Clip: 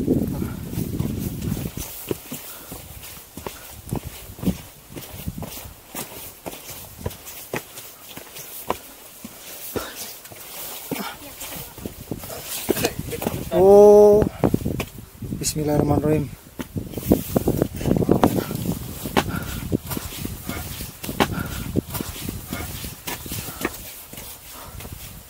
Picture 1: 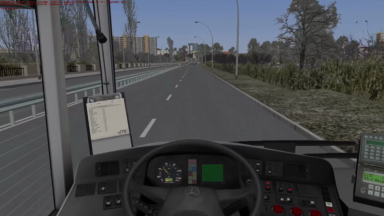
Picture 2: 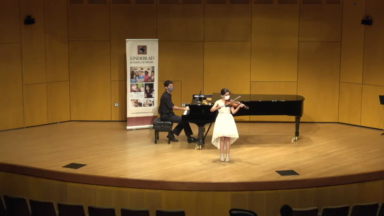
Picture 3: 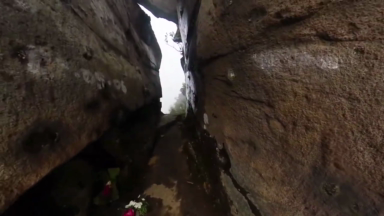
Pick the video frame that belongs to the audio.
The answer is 3